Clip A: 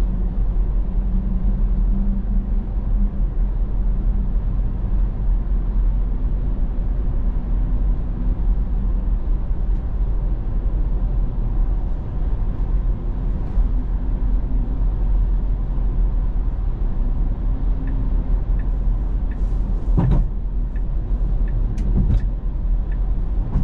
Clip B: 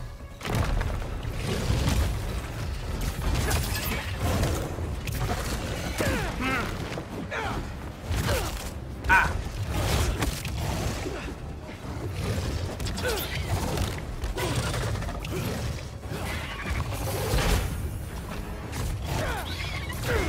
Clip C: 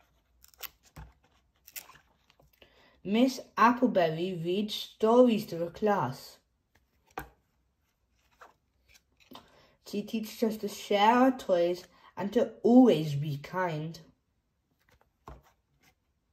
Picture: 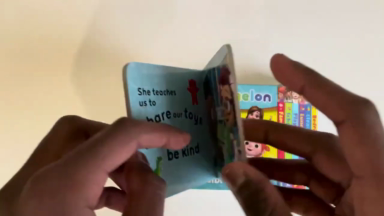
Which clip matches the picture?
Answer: C